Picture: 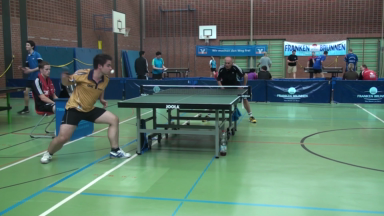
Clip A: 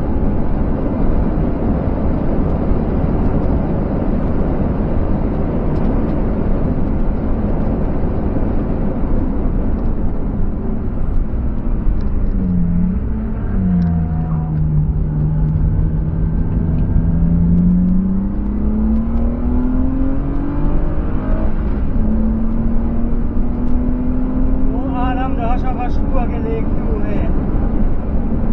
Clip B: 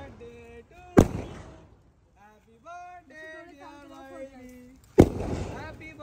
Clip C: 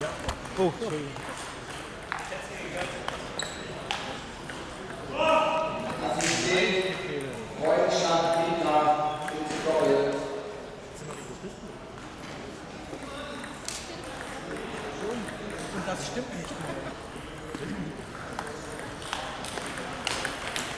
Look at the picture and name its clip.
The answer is C